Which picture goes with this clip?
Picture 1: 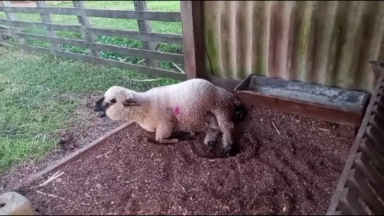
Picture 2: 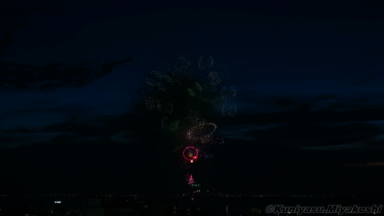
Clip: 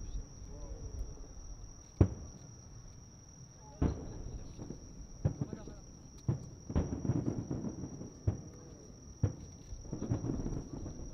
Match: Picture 2